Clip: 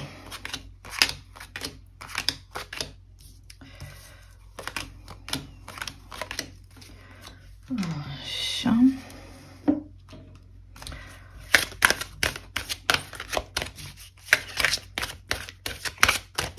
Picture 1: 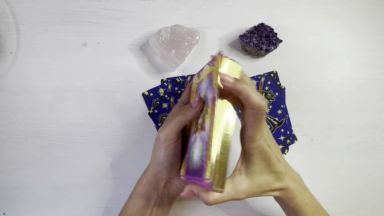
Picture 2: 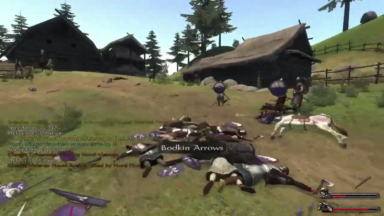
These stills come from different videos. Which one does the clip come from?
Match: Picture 1